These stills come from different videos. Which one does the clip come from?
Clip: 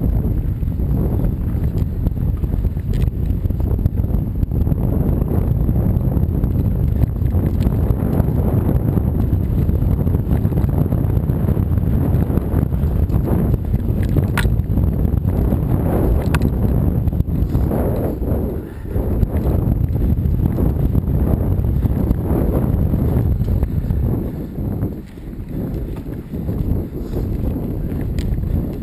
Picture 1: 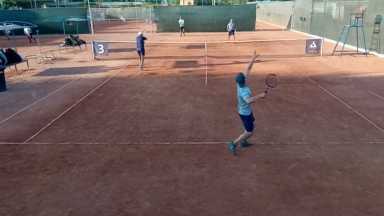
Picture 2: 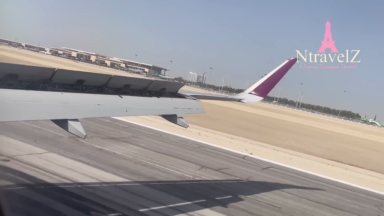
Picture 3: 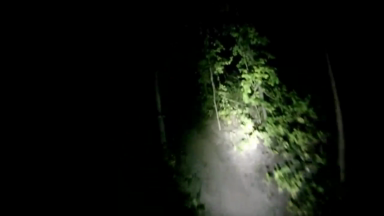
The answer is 3